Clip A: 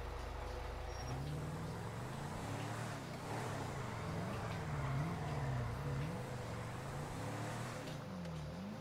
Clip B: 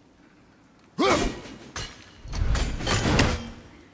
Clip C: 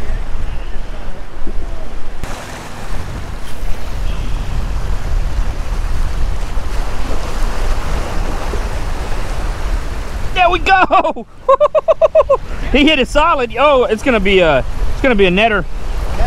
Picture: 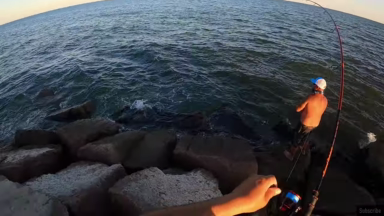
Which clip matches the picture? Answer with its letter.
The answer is C